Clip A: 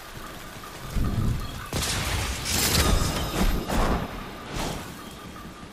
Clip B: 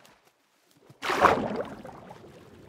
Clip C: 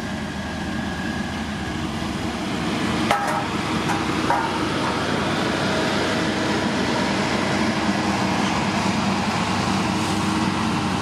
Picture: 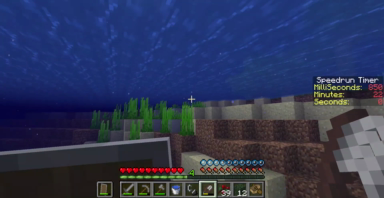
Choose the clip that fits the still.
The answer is B